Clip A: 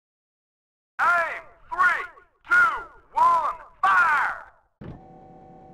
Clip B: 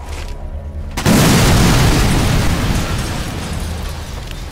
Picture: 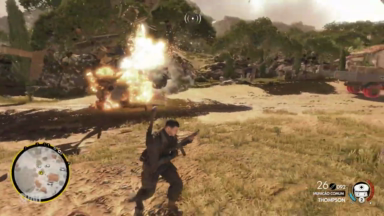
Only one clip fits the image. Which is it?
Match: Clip B